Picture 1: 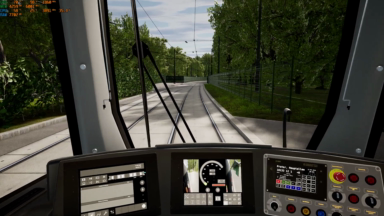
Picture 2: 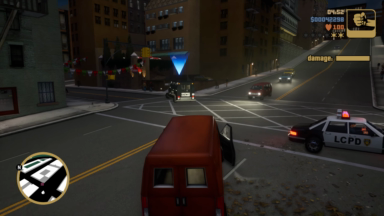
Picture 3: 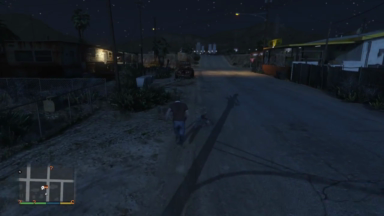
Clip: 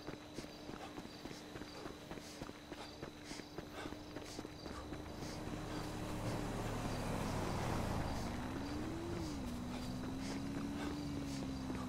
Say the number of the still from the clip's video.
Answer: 3